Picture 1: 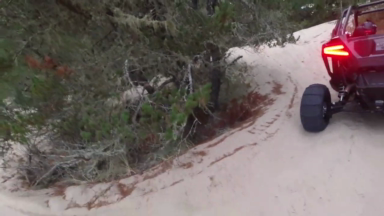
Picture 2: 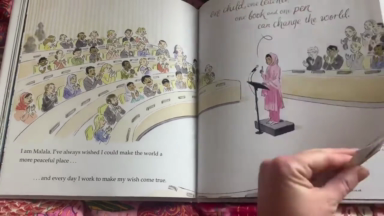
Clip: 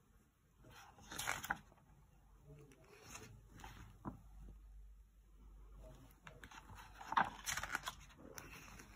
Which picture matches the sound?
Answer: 2